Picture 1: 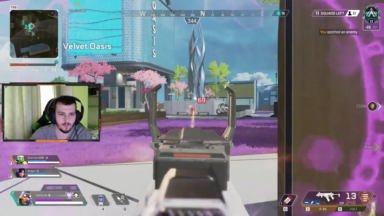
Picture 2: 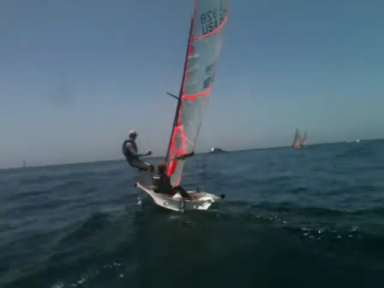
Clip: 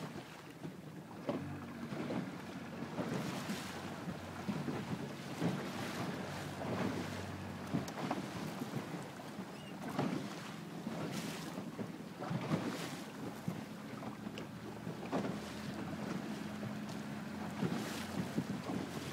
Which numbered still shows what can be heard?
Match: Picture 2